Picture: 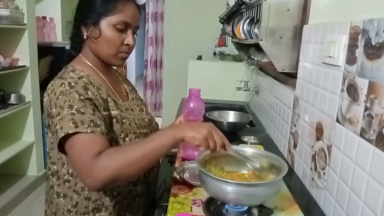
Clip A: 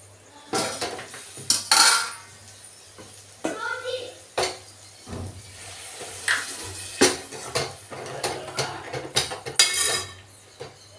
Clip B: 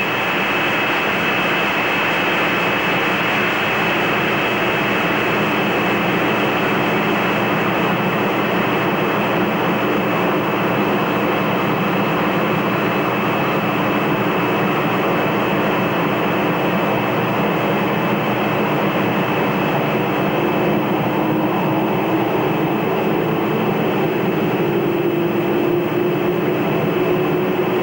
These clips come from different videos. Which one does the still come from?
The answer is A